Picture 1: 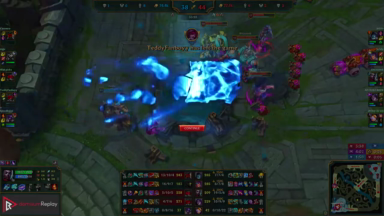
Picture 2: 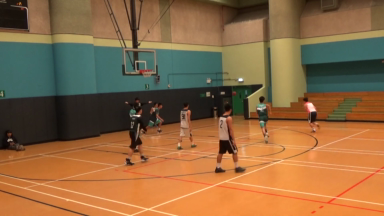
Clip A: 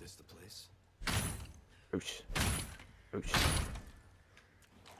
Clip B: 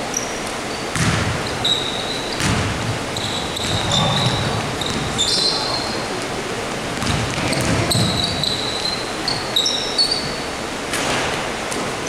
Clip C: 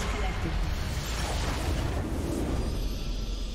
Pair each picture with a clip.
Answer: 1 C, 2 B